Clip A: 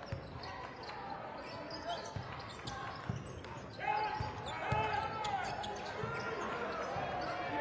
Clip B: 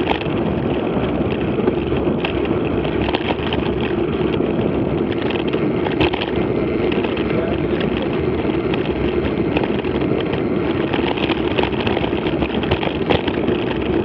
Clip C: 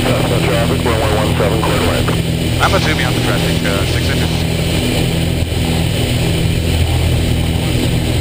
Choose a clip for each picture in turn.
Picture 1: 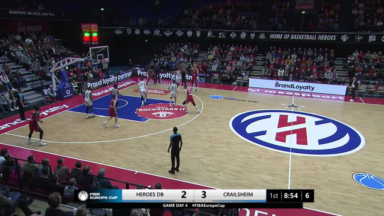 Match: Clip A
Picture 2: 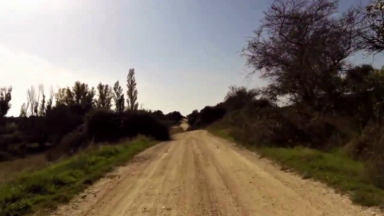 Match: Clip B